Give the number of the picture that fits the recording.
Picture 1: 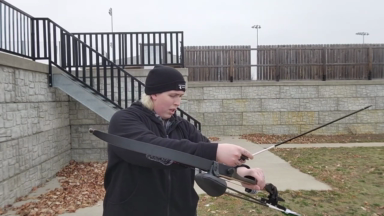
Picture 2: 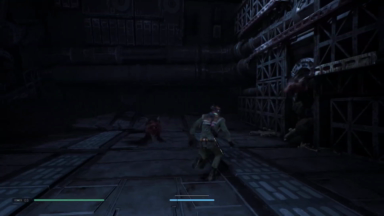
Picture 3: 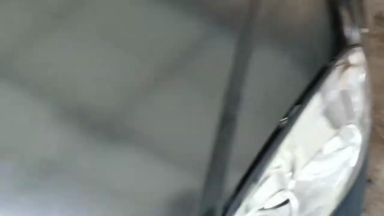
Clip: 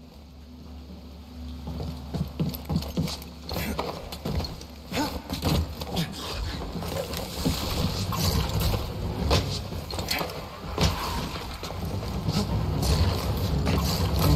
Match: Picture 2